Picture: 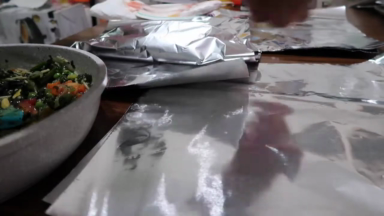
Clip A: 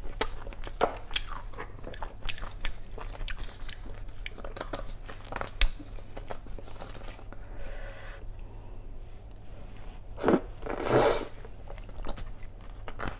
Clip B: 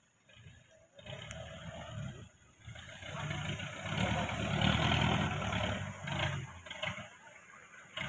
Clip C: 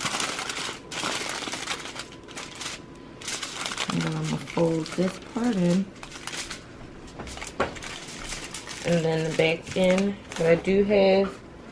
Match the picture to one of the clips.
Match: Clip C